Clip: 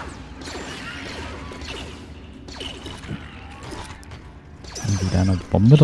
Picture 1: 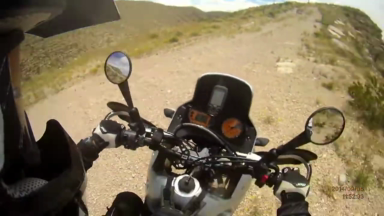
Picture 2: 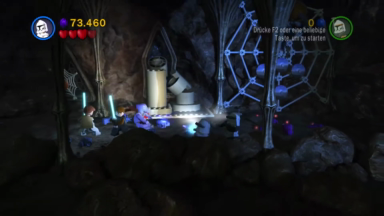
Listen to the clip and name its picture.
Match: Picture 2